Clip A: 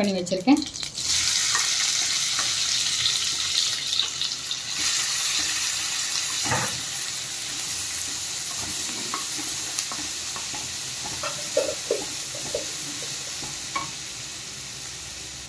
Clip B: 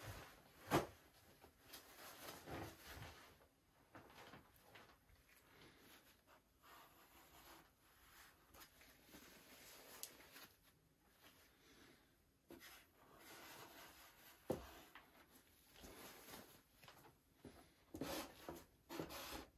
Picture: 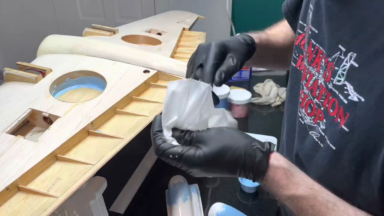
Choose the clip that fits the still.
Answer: B